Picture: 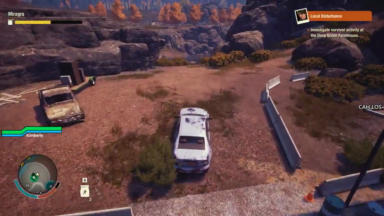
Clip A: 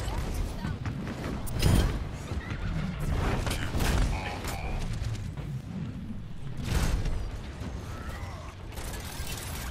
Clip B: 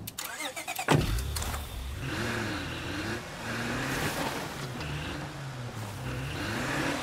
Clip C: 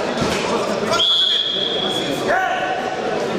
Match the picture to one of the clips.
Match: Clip B